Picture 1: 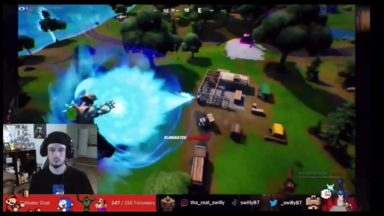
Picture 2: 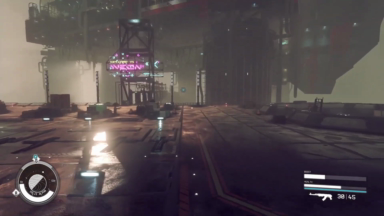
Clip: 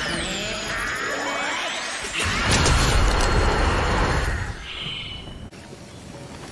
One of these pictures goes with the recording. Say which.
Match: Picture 1